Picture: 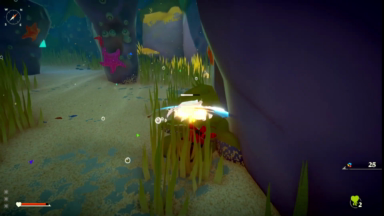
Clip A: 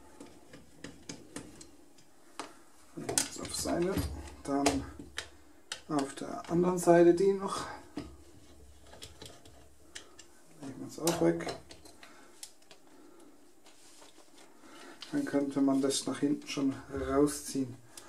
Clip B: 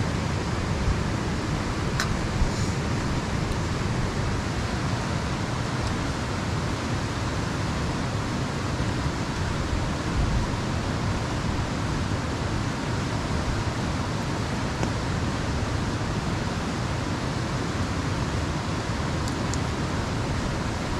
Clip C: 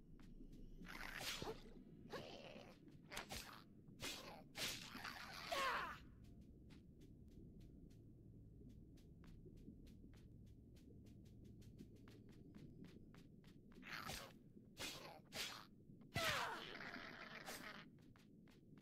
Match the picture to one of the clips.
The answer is C